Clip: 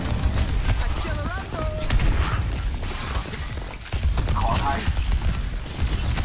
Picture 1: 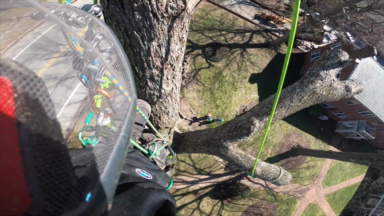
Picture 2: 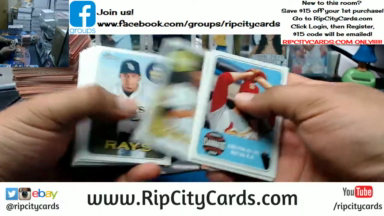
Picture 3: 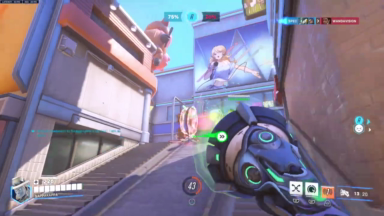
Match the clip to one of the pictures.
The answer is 3